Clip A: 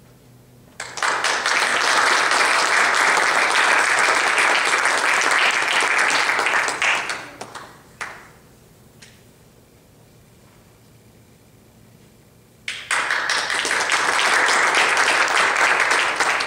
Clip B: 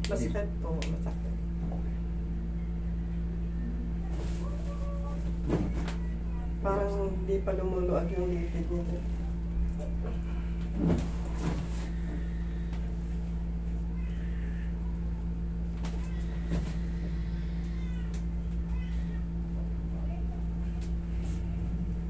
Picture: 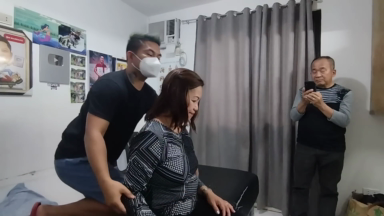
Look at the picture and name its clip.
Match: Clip B